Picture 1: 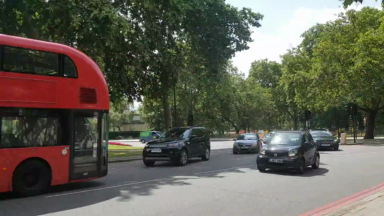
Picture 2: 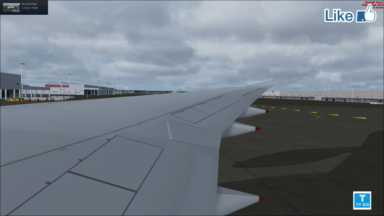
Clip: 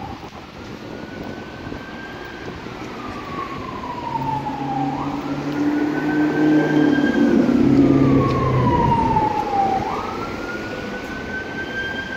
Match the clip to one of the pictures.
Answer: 1